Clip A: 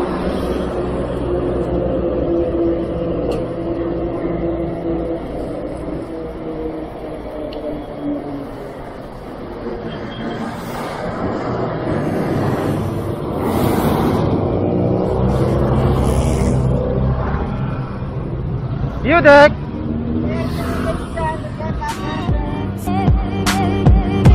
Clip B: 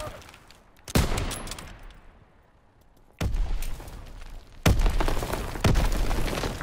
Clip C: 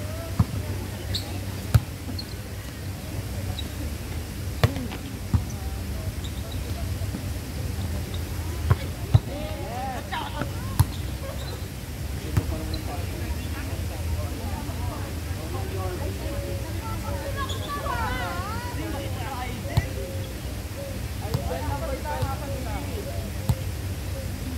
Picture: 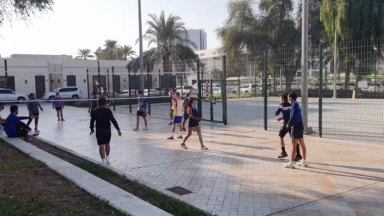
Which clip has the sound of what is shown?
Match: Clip C